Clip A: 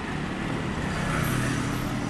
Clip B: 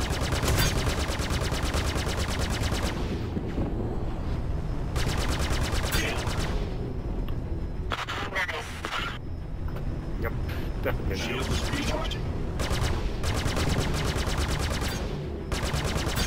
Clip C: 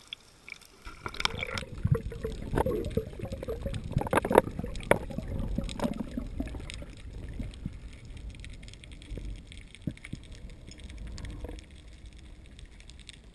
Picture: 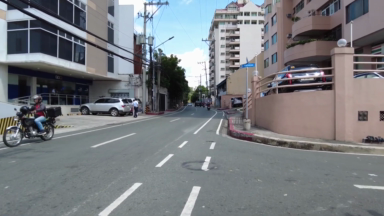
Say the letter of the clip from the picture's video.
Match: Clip A